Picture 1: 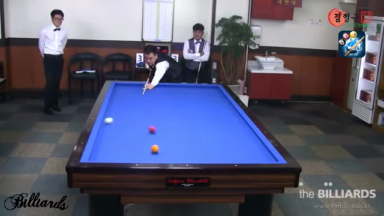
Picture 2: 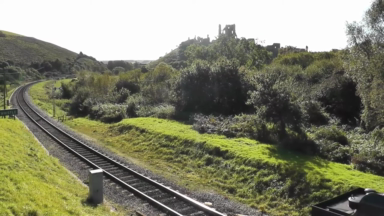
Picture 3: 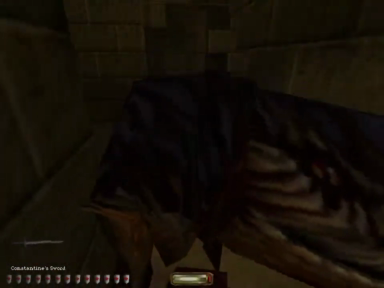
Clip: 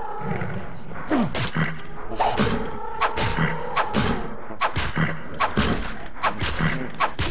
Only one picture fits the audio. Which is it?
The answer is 3